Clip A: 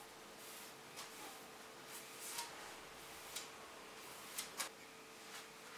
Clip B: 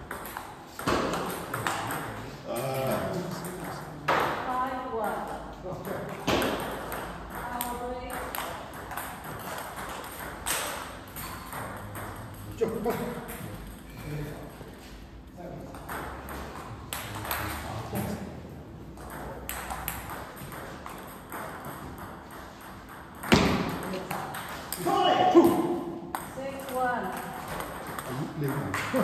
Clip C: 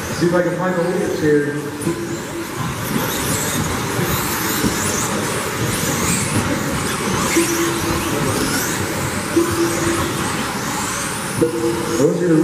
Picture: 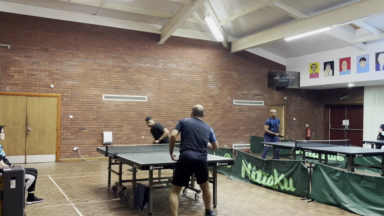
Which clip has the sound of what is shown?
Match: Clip B